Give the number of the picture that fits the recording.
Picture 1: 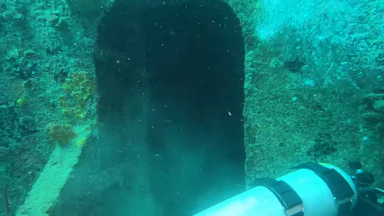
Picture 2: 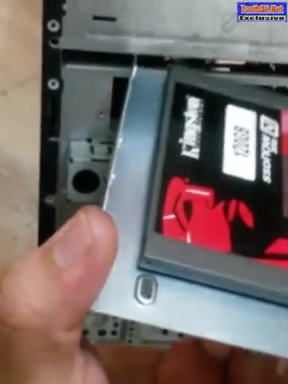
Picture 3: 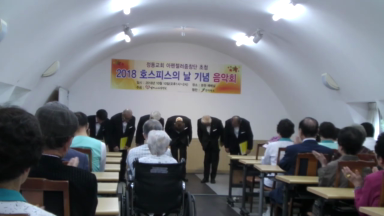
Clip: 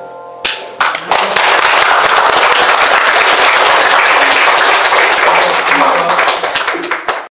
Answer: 3